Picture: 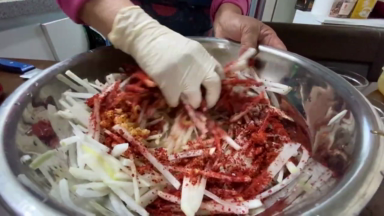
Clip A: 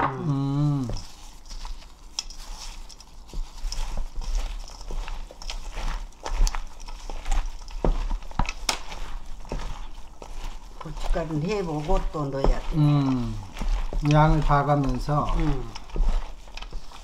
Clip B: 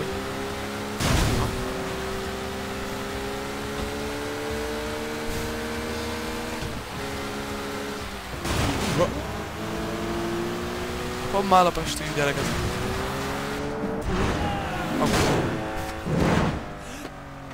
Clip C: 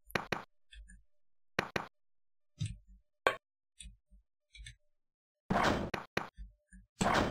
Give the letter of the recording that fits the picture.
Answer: A